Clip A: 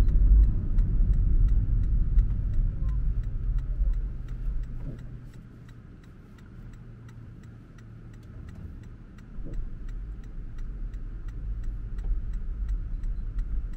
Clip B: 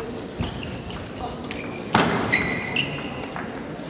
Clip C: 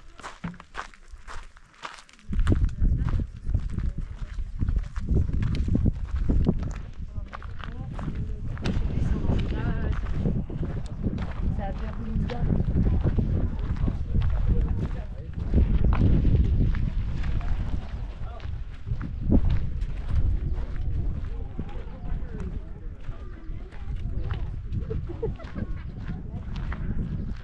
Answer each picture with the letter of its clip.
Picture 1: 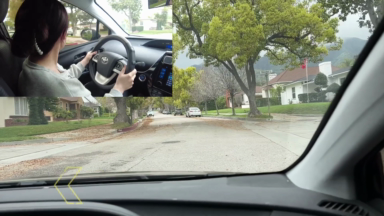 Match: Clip A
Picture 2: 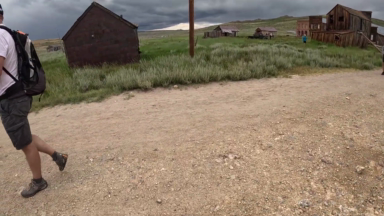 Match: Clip C